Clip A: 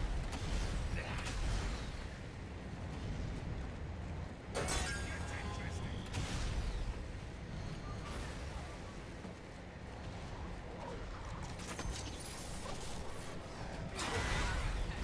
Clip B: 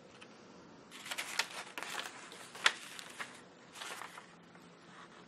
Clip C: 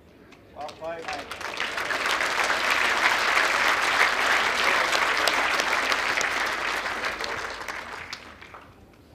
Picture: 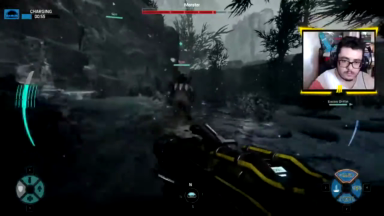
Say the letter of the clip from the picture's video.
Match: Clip A